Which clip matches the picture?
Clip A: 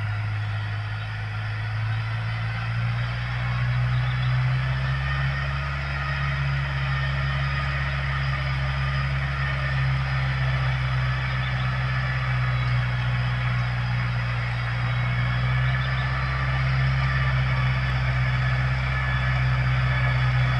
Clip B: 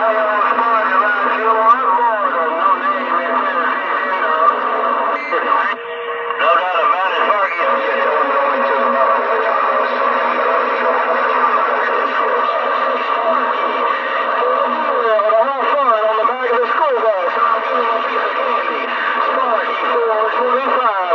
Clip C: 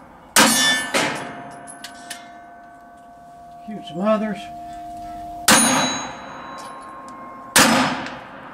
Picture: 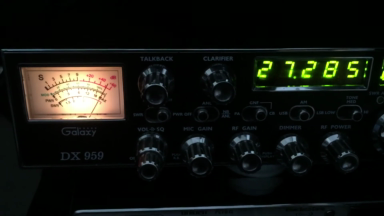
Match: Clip B